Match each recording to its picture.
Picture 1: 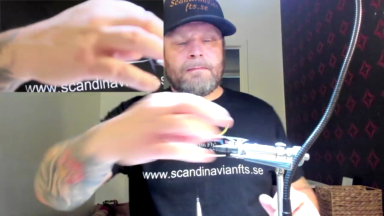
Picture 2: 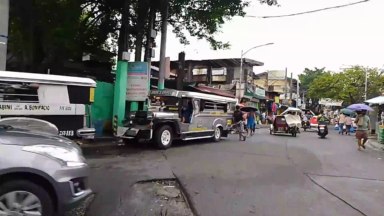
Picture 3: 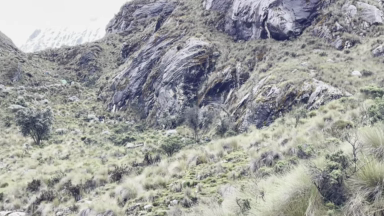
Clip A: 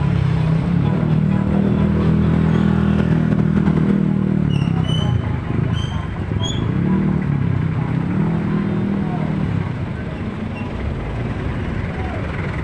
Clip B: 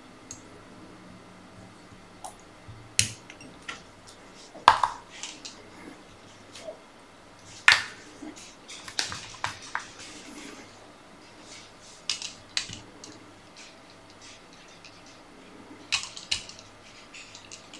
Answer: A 2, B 1